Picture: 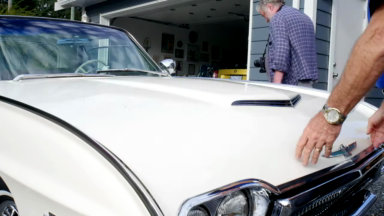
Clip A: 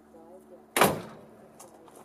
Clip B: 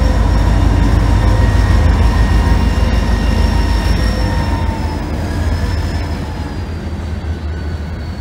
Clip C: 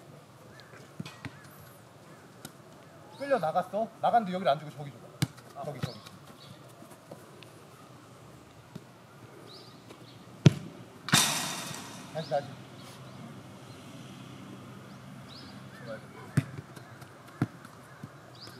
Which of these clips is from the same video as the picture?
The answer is A